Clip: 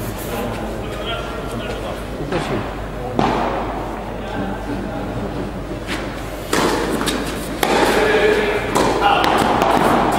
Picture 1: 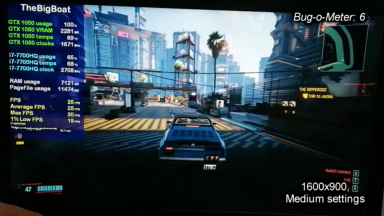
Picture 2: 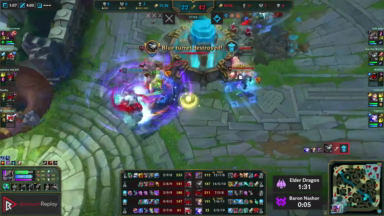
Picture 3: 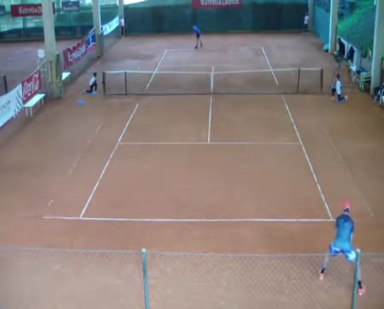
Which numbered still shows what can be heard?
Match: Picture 3